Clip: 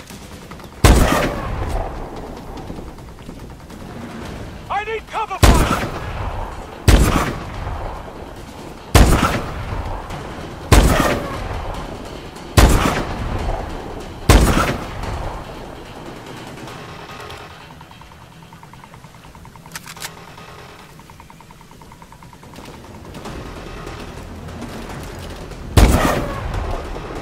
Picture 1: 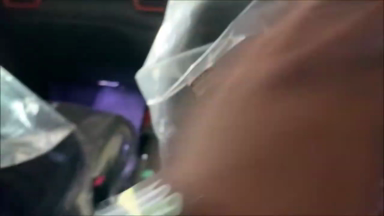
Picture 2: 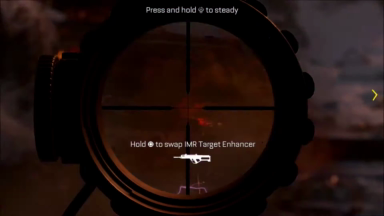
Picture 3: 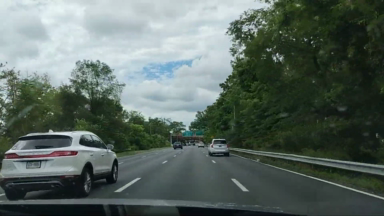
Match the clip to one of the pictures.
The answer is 2